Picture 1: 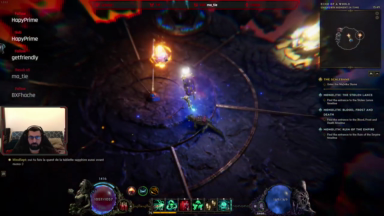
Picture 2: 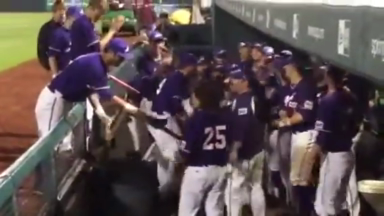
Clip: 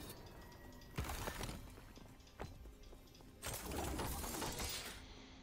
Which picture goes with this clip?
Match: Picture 1